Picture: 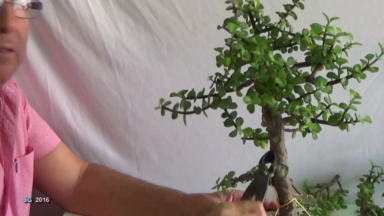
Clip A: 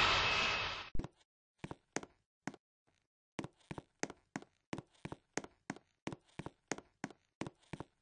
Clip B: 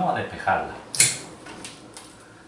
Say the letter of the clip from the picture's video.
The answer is B